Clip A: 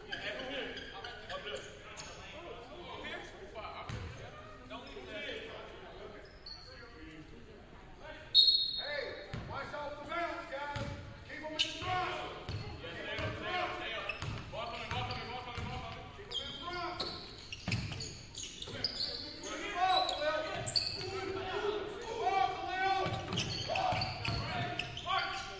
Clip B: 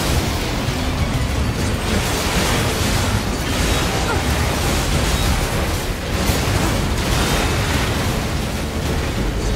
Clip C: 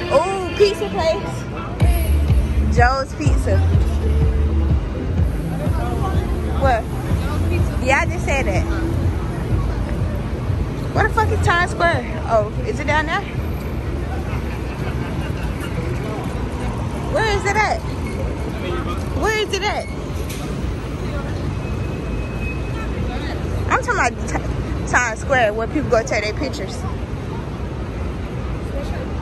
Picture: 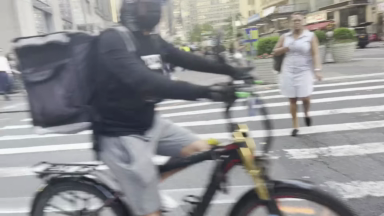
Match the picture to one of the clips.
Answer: C